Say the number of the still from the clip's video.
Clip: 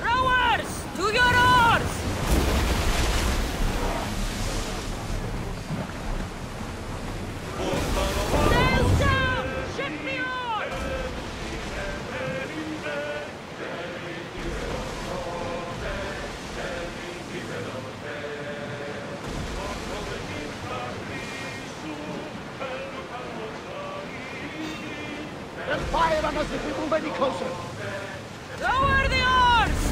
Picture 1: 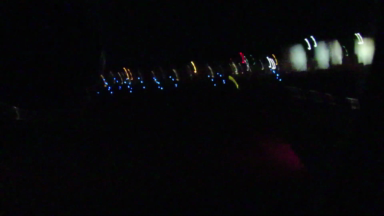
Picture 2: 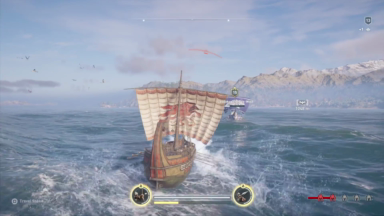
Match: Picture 2